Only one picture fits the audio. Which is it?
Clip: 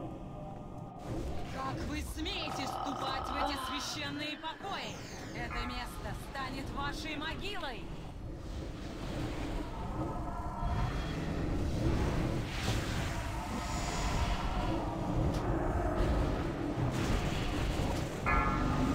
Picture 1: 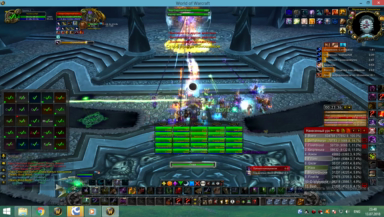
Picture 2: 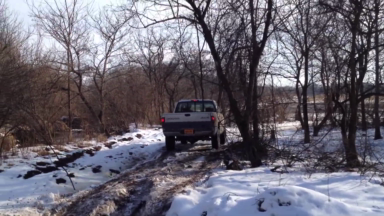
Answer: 1